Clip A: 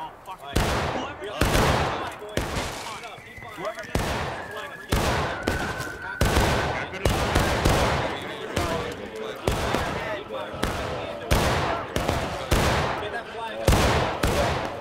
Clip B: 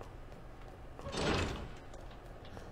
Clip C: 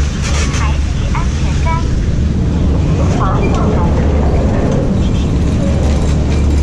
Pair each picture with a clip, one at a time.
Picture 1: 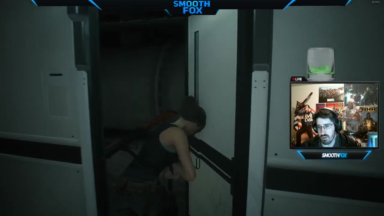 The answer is B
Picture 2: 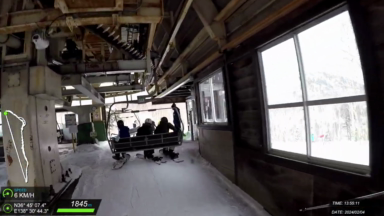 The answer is C